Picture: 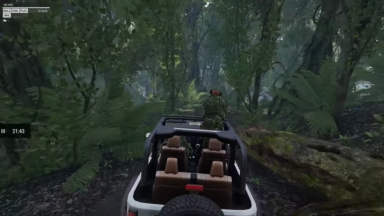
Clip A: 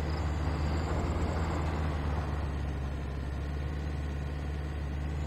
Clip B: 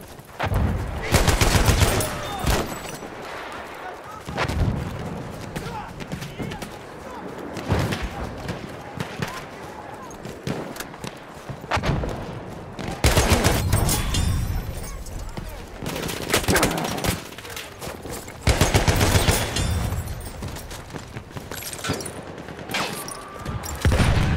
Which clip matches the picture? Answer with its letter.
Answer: A